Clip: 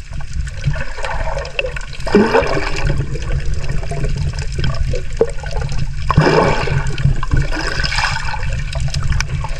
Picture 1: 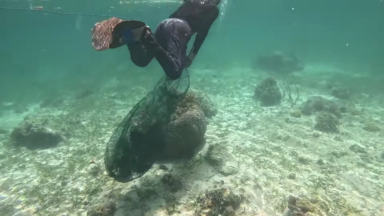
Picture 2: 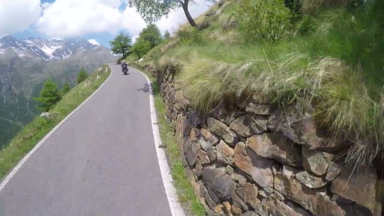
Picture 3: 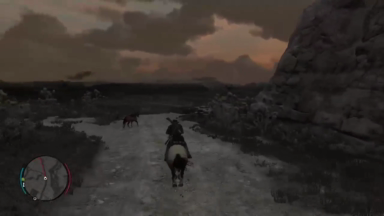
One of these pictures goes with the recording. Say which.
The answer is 1